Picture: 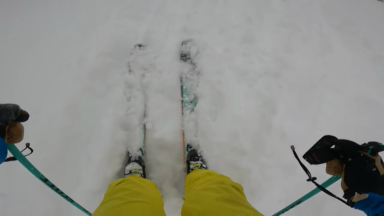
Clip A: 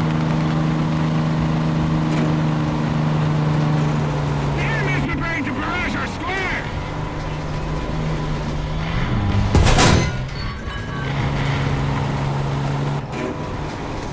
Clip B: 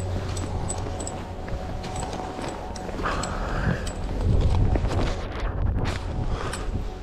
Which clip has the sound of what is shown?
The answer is B